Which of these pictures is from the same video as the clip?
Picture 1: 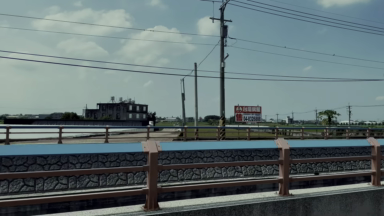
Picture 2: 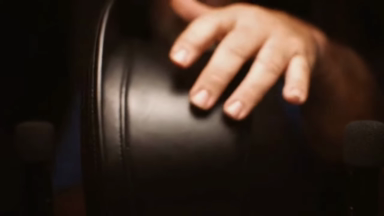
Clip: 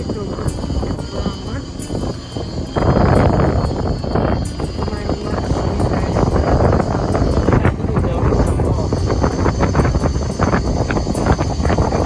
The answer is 1